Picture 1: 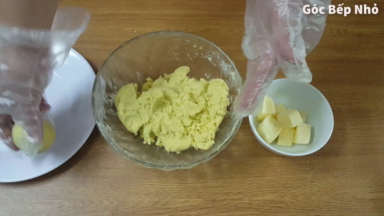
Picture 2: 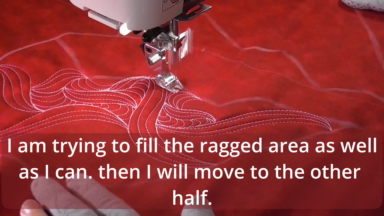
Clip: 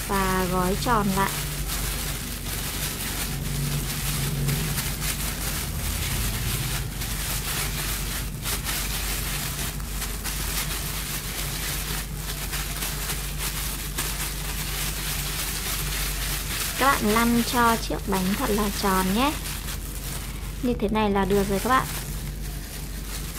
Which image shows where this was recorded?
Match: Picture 1